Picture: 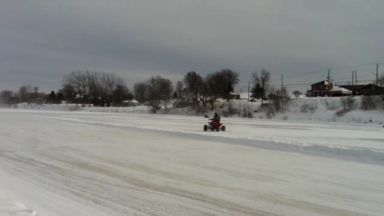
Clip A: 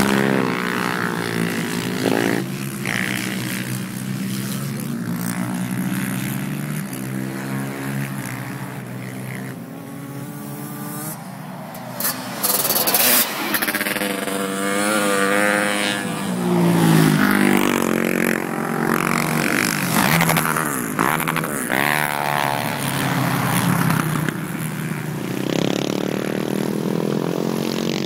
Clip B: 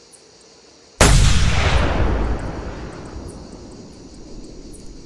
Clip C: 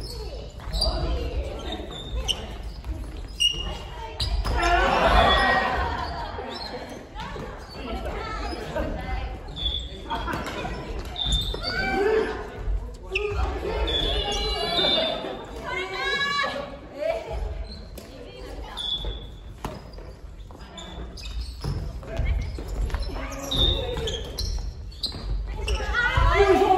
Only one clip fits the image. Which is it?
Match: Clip A